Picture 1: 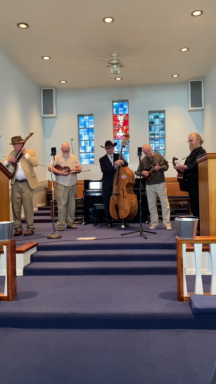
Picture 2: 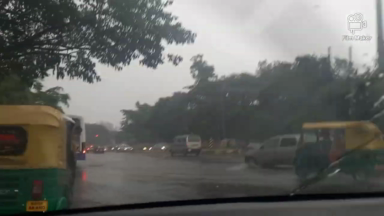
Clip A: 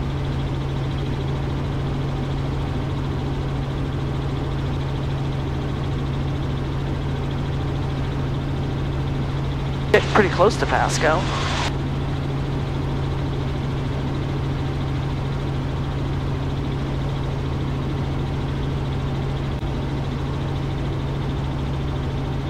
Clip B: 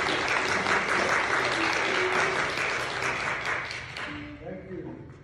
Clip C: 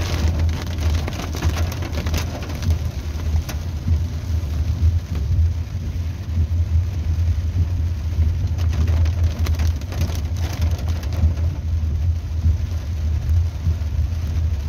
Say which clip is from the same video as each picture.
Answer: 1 B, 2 C